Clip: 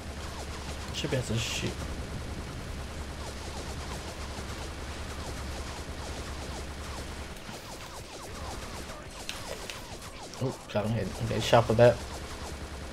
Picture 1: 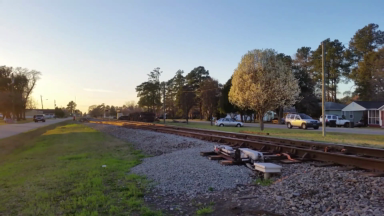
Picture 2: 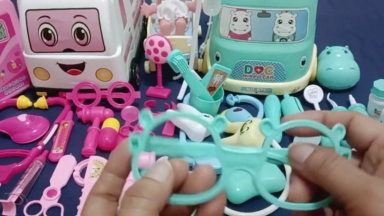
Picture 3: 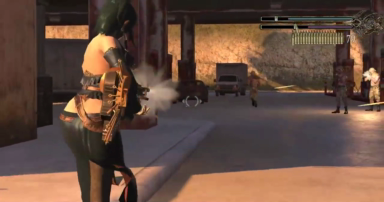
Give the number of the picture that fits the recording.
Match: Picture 3